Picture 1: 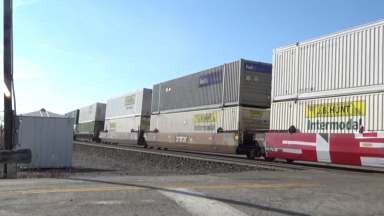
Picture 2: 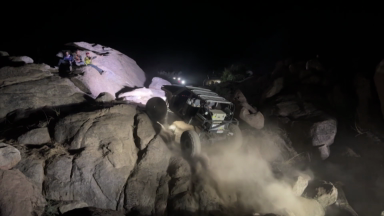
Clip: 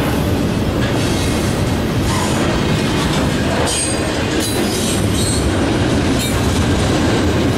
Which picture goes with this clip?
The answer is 1